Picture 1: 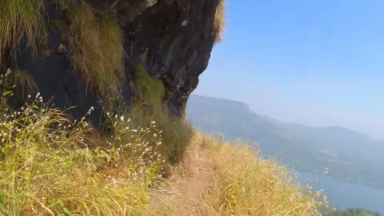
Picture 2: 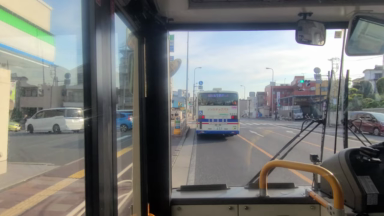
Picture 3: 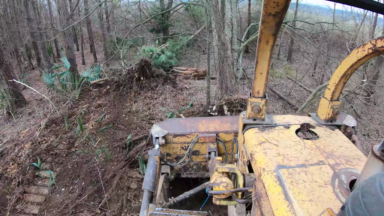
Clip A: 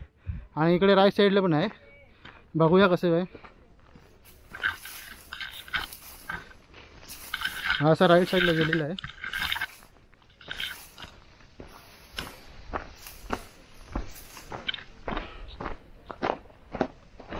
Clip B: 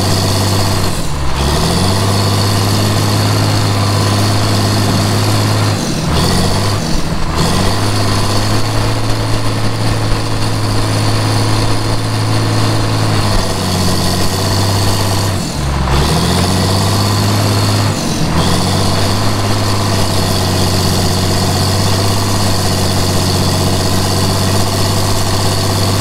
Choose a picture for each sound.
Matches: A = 1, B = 3